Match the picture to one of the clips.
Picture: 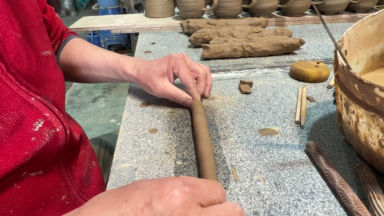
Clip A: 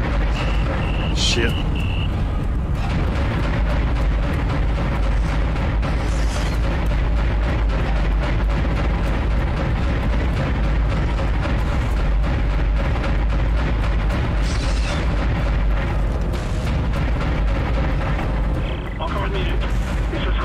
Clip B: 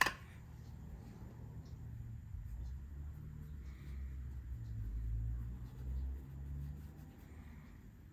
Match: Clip B